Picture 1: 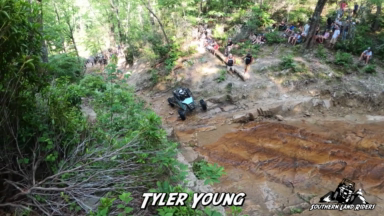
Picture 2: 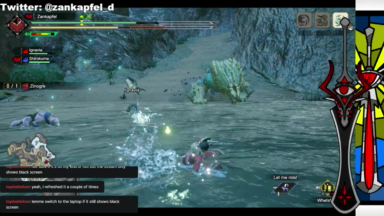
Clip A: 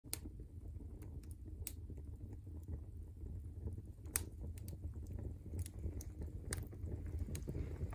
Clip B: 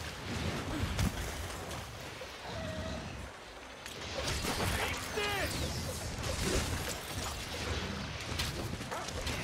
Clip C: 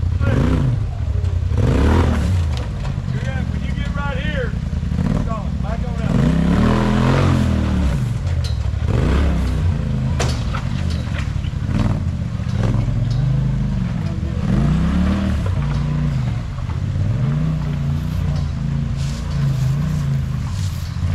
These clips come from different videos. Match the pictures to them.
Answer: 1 C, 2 B